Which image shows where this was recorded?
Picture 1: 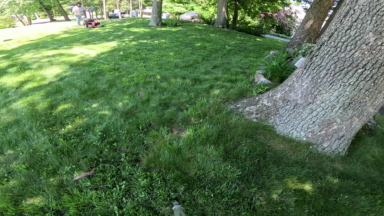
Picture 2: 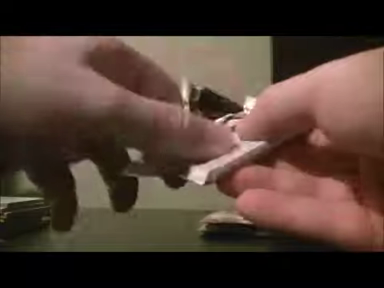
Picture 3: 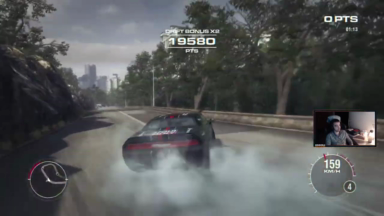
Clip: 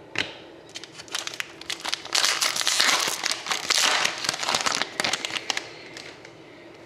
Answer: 2